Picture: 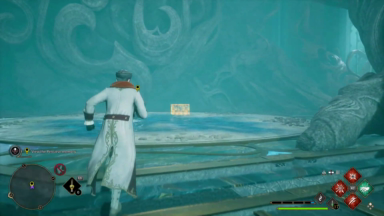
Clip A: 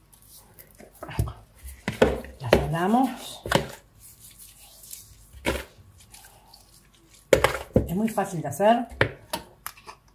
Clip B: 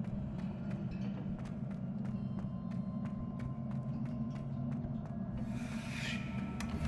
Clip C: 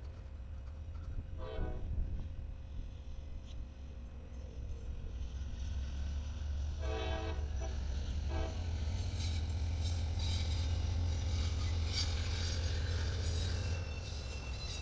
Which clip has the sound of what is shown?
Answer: B